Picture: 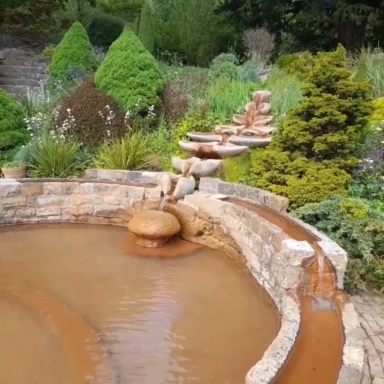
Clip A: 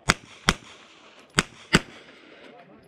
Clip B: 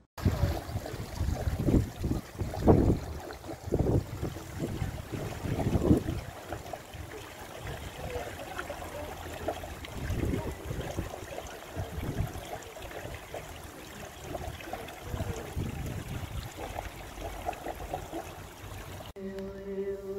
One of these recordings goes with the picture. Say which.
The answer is B